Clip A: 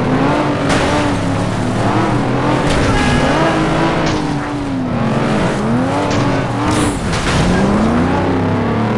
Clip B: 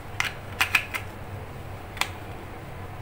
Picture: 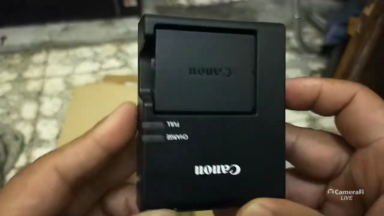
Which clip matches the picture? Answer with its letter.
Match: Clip B